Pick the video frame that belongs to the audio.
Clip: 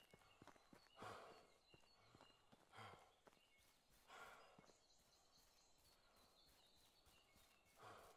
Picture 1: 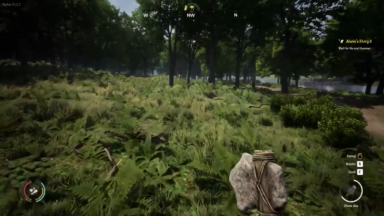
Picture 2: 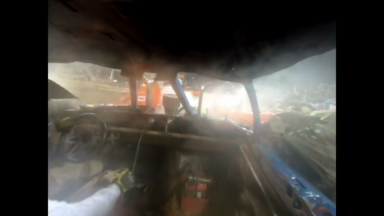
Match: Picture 1